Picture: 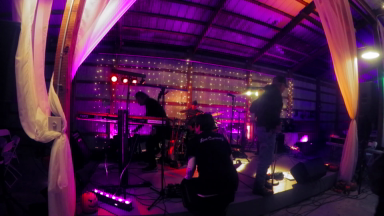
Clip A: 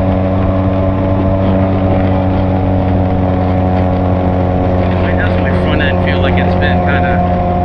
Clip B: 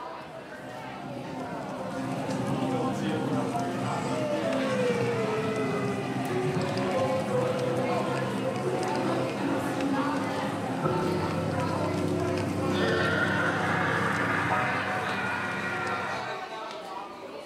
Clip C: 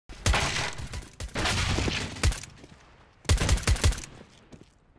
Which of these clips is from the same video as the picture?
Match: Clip B